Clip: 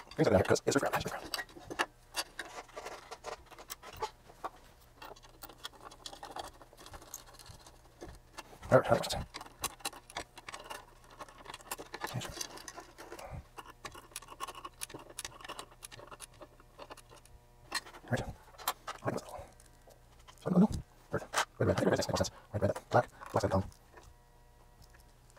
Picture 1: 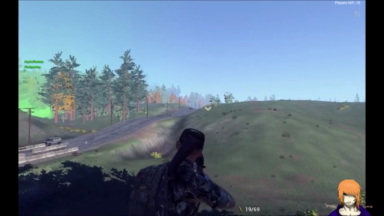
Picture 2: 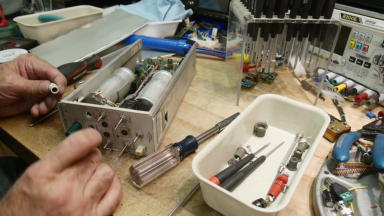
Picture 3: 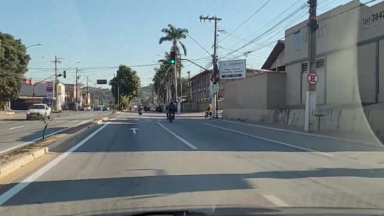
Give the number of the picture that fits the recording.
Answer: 2